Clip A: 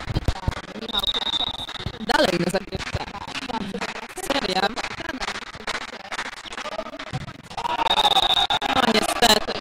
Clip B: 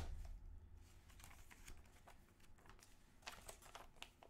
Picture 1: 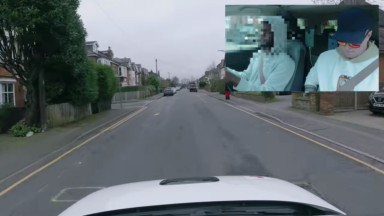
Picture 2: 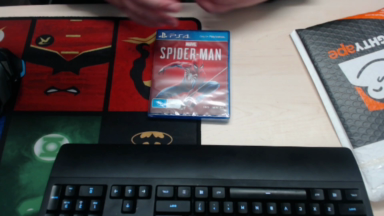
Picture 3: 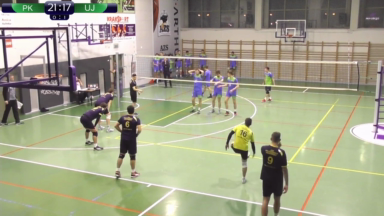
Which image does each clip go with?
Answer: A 3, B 2